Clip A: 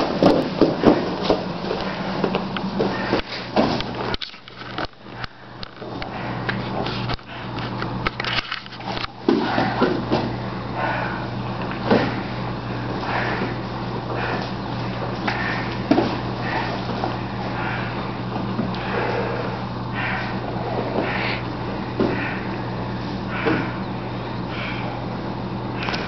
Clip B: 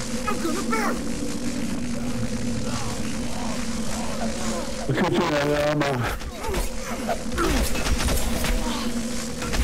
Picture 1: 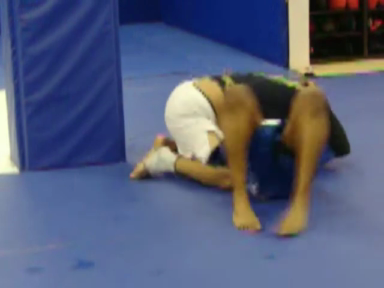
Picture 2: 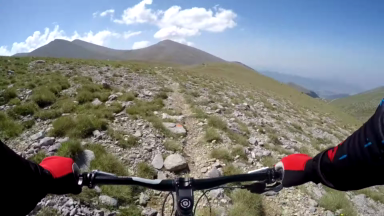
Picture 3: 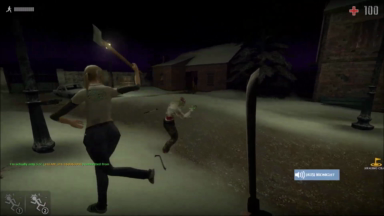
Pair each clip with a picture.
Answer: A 1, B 3